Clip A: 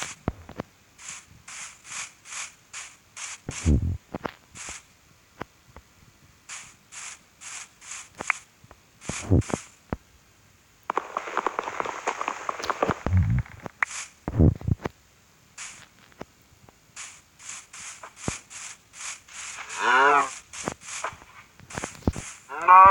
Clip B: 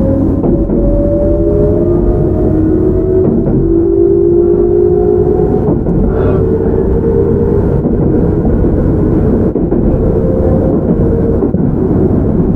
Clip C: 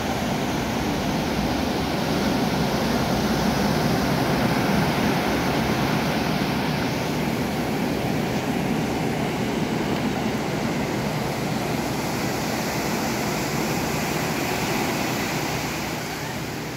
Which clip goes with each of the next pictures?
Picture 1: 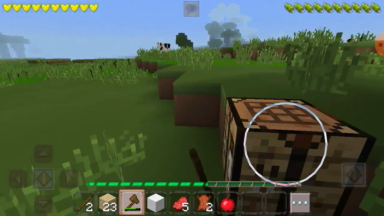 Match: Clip A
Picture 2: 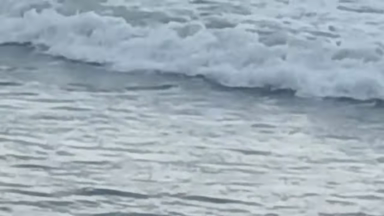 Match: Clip C